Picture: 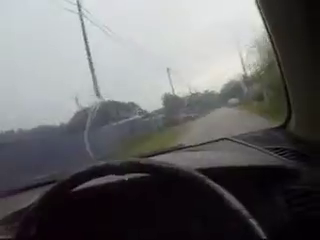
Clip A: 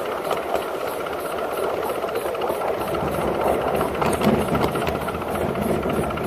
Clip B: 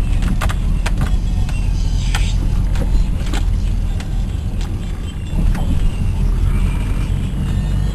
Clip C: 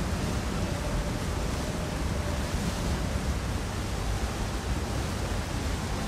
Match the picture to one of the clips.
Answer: B